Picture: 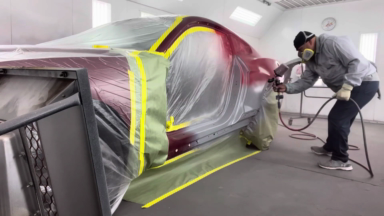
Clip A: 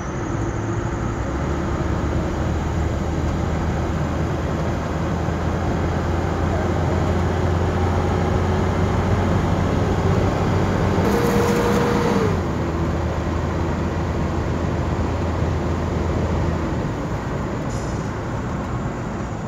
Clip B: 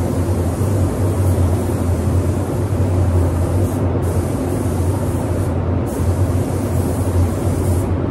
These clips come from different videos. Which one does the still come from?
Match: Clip B